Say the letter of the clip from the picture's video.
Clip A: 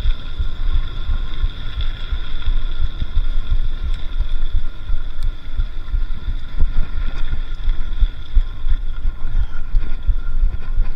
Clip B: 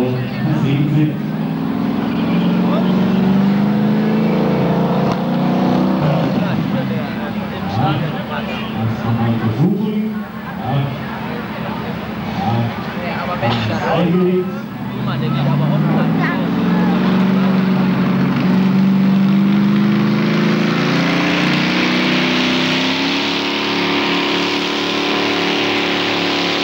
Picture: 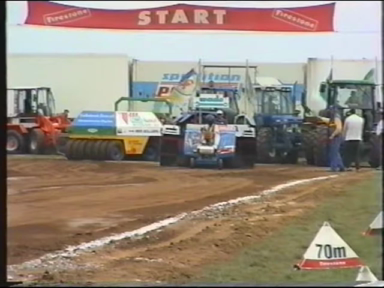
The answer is B